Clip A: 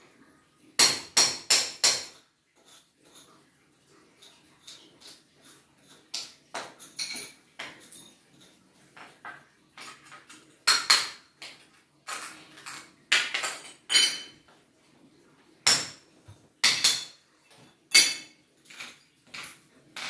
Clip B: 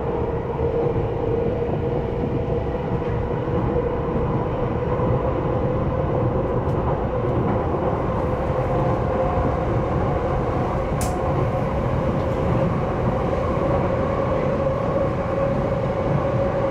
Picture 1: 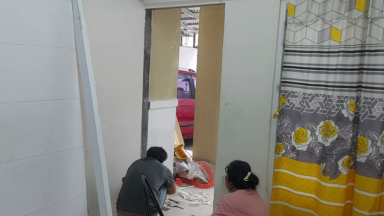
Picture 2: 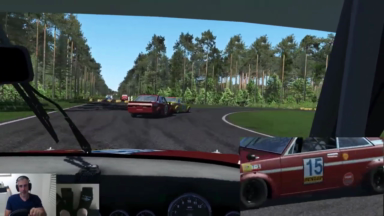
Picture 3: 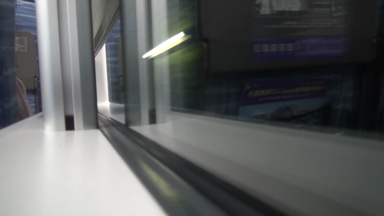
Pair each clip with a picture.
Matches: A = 1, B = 3